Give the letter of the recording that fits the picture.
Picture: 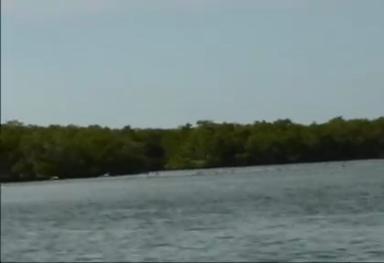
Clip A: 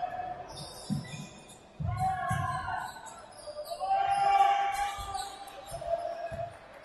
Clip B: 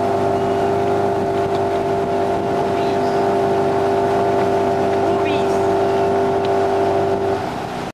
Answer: B